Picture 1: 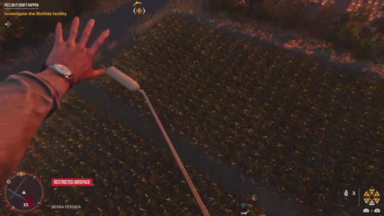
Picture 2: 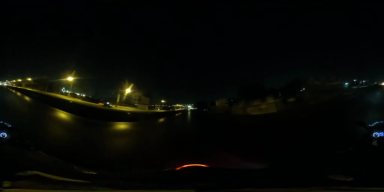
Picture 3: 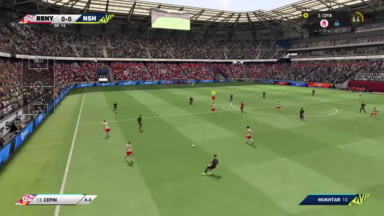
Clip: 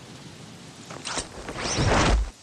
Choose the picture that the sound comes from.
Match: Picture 1